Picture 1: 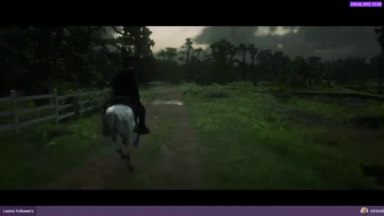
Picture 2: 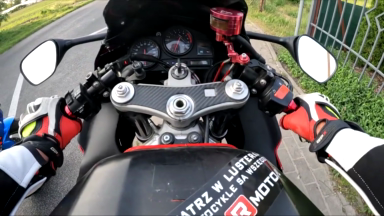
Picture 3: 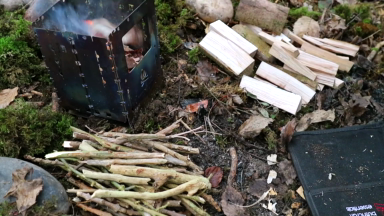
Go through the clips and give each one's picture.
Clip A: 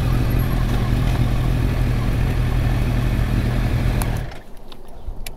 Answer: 2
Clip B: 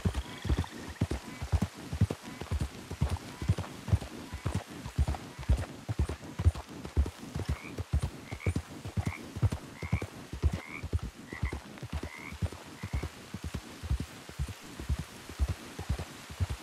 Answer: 1